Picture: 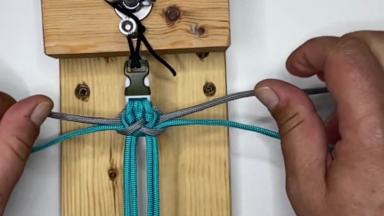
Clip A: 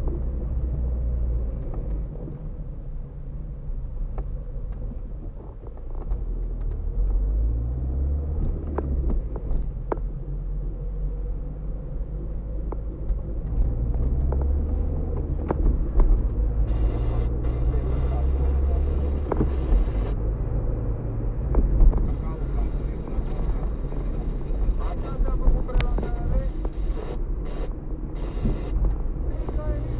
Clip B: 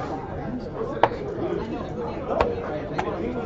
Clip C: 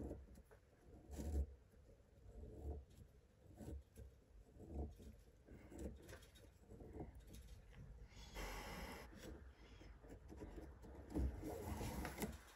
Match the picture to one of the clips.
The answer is C